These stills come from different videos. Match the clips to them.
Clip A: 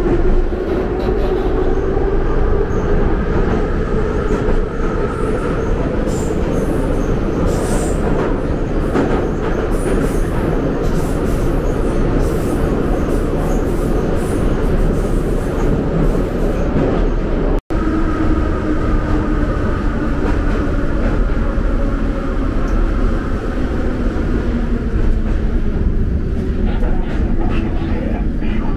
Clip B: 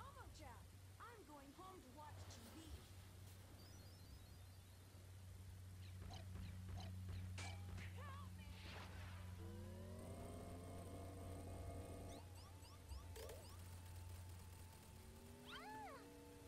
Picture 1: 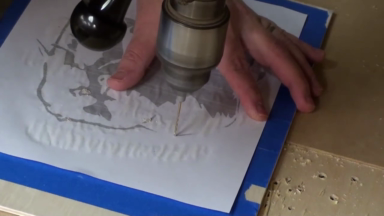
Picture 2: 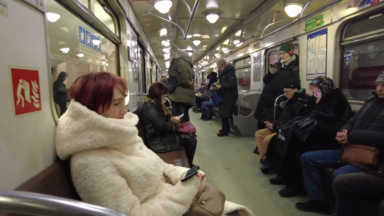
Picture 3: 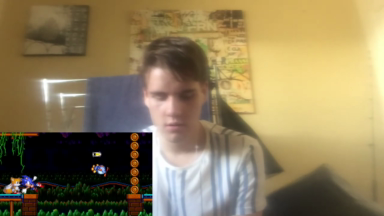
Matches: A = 2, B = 3